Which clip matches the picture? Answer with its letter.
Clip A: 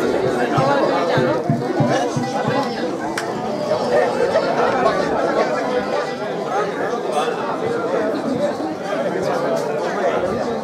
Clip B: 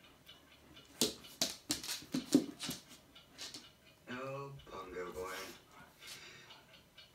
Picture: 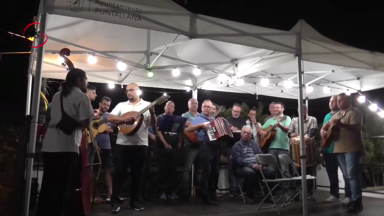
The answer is A